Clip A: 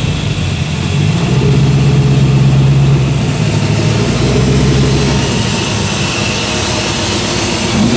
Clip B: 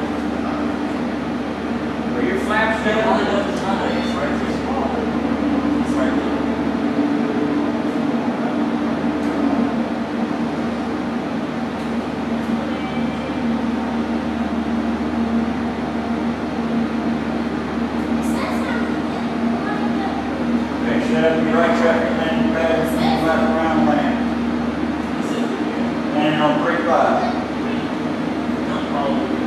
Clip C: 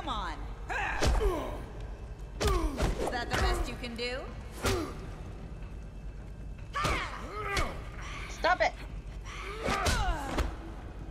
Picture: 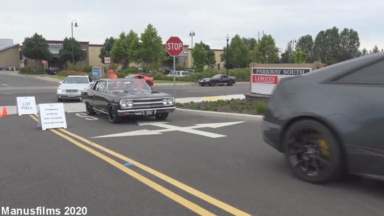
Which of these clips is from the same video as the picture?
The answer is A